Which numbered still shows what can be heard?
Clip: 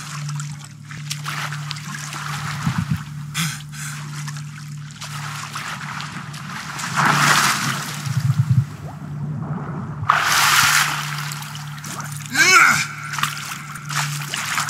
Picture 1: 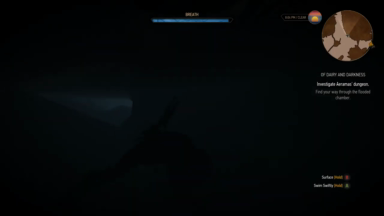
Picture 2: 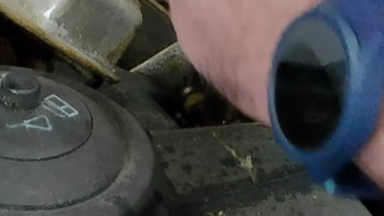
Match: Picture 1